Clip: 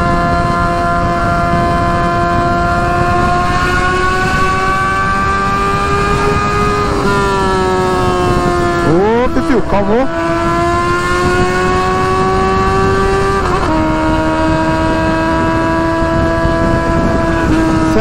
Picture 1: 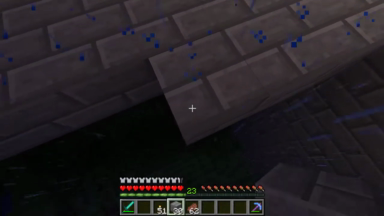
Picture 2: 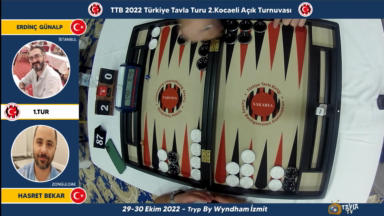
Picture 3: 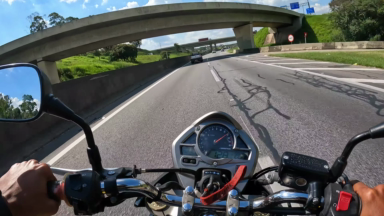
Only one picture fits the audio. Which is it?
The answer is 3